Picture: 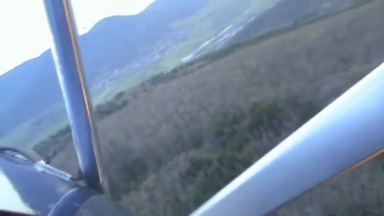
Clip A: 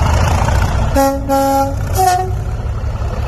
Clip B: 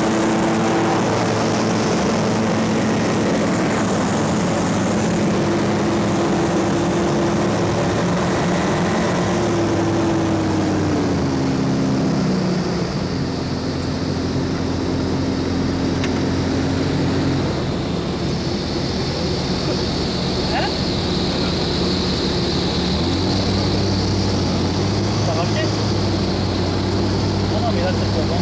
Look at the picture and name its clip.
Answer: B